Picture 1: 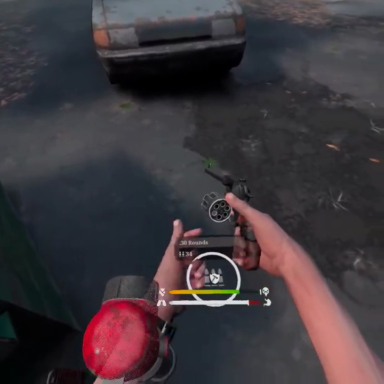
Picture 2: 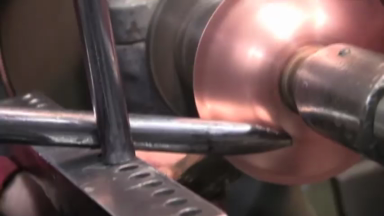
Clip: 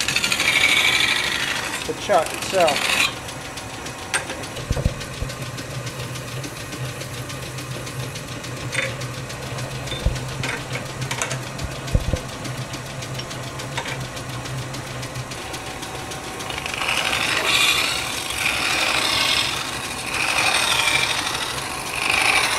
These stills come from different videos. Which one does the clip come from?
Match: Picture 2